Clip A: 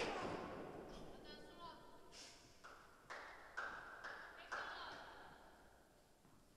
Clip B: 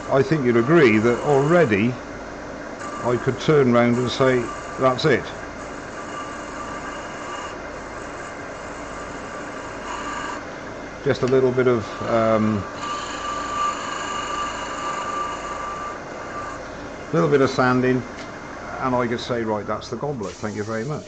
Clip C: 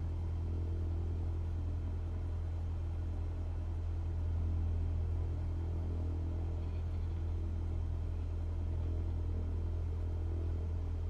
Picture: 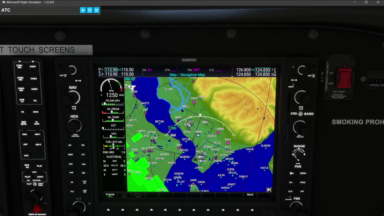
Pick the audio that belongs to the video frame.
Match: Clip C